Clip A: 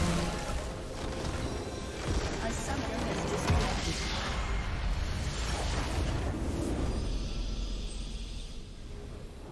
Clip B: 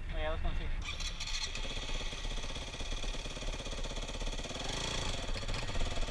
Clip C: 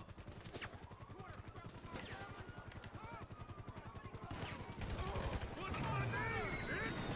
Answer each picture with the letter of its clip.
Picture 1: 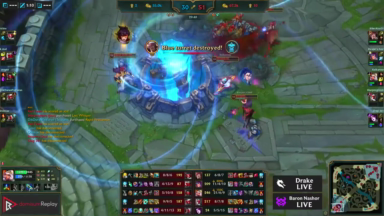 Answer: A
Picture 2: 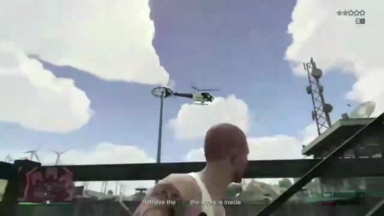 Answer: C